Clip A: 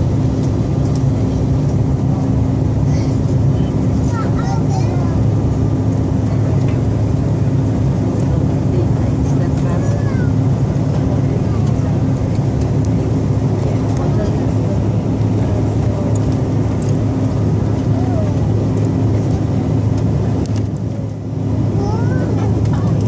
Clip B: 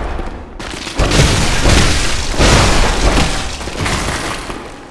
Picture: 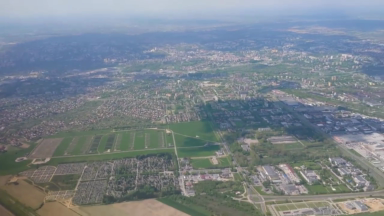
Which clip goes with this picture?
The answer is A